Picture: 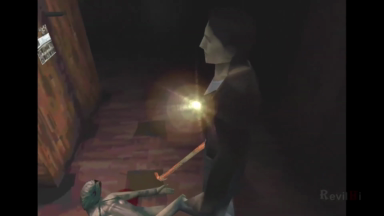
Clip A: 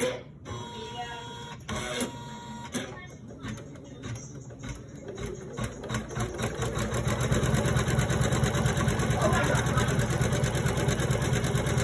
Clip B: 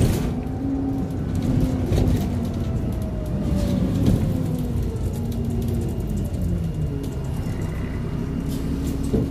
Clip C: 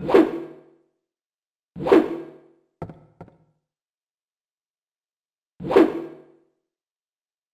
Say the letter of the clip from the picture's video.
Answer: C